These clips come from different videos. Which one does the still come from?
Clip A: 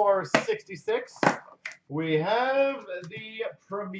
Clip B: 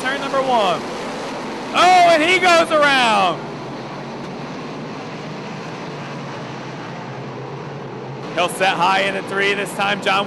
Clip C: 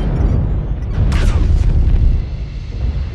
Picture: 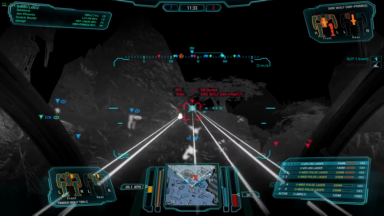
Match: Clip C